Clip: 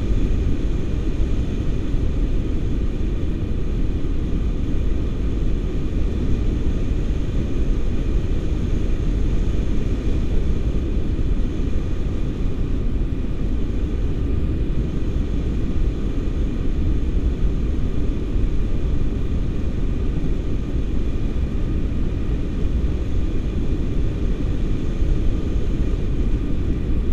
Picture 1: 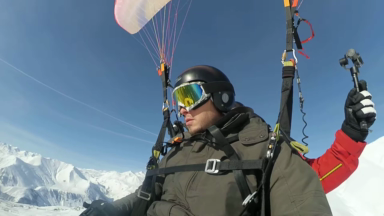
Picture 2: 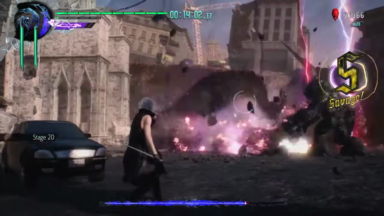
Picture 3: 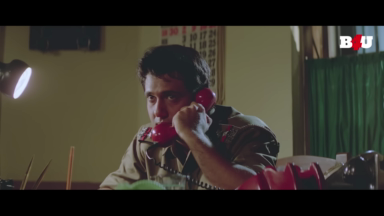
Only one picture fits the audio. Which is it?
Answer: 1